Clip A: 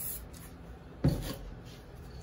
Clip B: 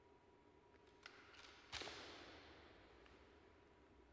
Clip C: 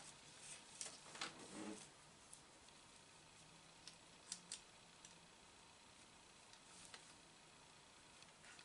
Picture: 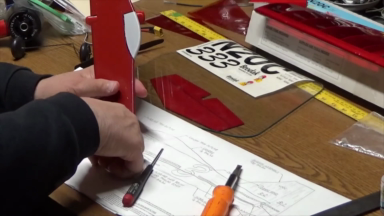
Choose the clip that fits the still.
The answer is C